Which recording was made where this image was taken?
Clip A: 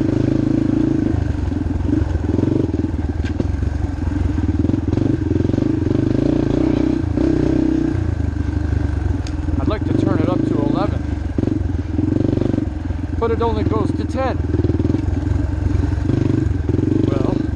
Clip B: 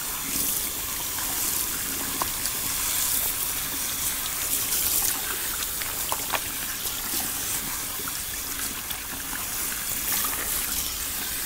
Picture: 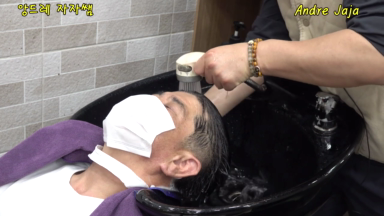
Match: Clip B